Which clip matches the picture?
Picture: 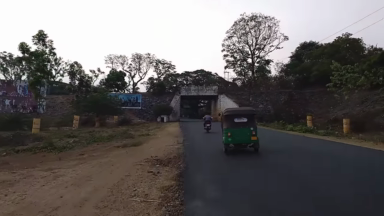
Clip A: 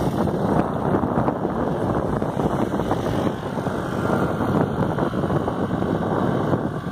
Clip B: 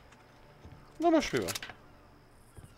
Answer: A